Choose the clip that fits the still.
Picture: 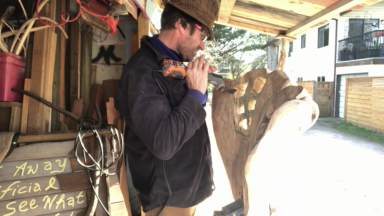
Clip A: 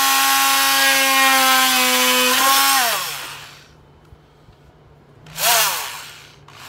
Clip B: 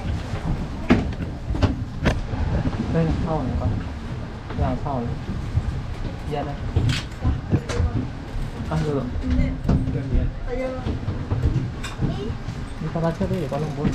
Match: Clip A